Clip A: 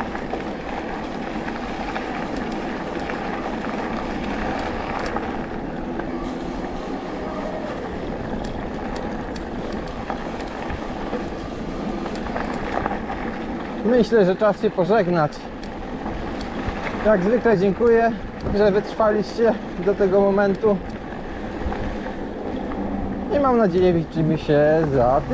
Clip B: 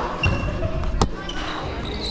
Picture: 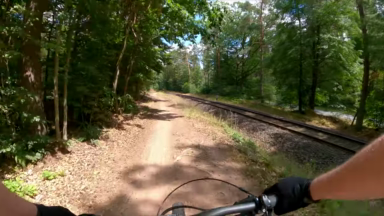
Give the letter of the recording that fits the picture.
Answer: A